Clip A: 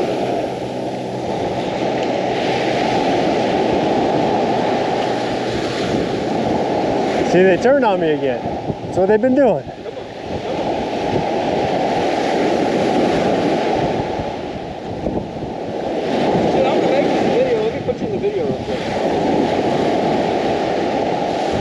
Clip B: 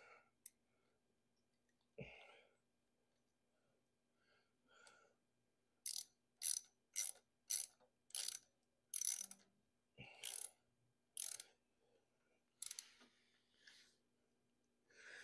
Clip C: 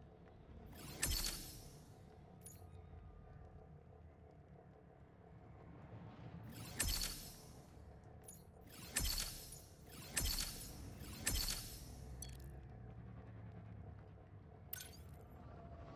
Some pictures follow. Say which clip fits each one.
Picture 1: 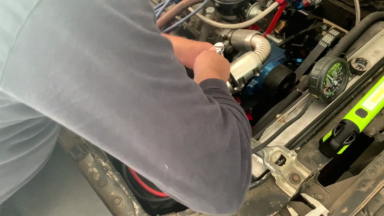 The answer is B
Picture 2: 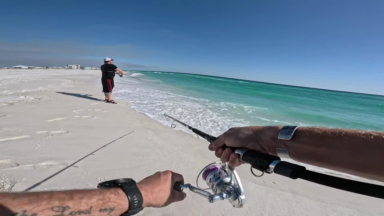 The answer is A